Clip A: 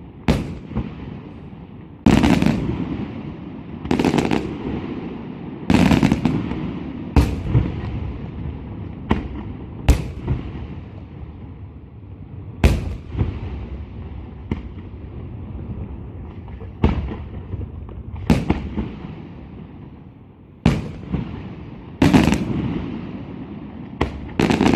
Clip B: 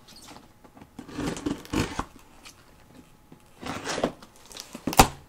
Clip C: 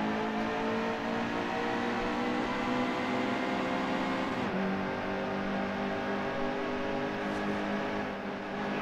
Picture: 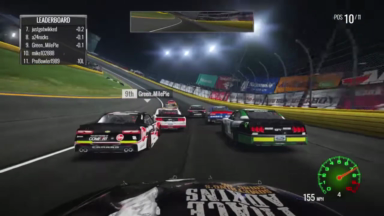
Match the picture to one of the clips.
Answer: C